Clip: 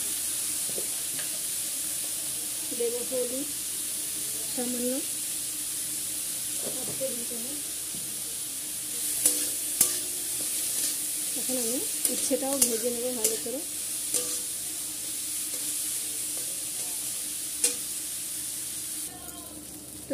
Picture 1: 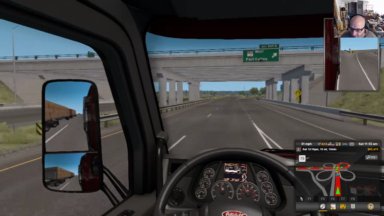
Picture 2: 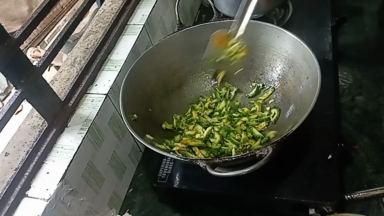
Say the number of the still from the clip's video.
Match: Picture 2